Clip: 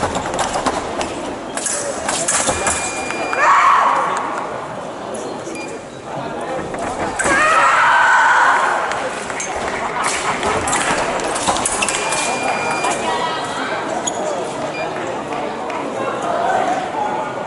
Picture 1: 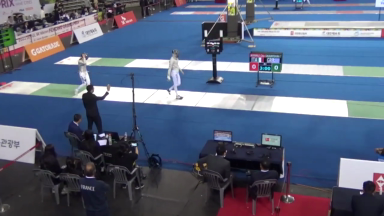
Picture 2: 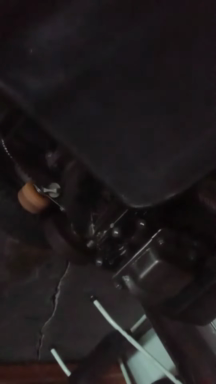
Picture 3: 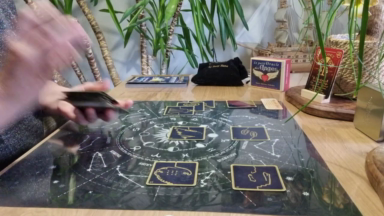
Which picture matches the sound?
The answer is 1